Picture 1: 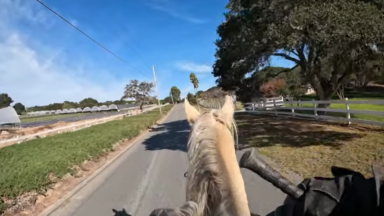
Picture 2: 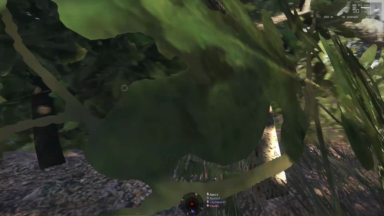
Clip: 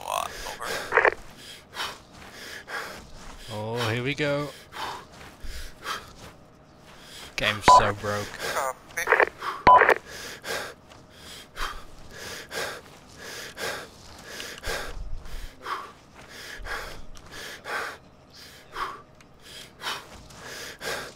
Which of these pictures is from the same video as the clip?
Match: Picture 2